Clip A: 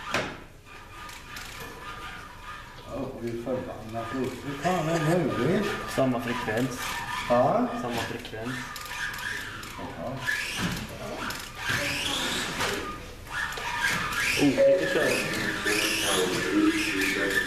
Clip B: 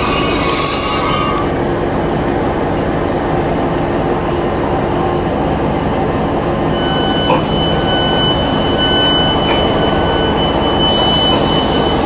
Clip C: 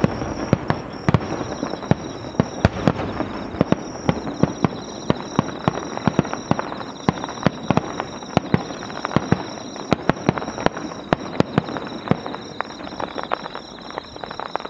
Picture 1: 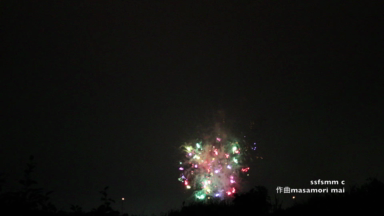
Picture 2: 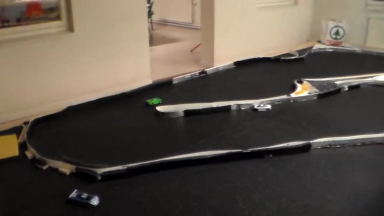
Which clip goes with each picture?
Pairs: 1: C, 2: A